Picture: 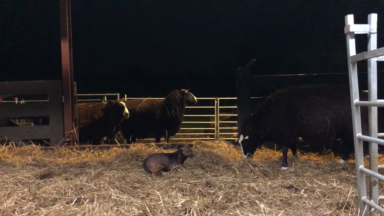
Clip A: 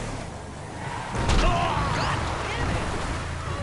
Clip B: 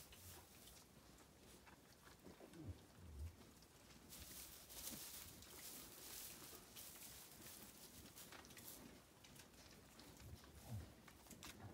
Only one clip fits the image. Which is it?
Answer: B